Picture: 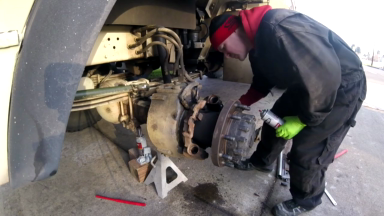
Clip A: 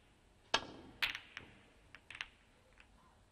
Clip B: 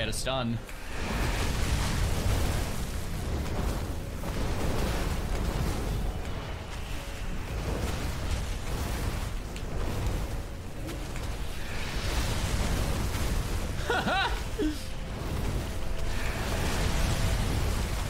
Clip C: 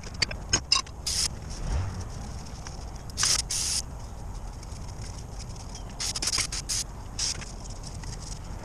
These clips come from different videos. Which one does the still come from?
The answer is C